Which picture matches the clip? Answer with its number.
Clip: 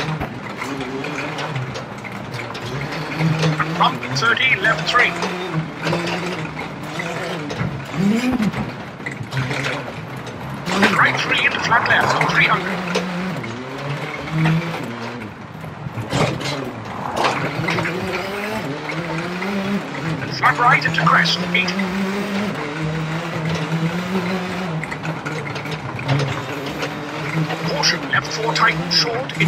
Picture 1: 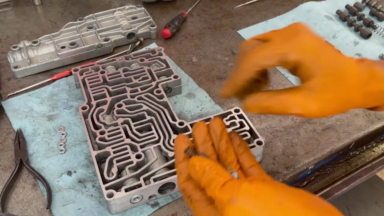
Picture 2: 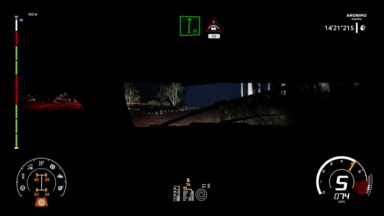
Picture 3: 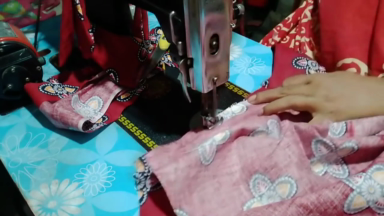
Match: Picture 2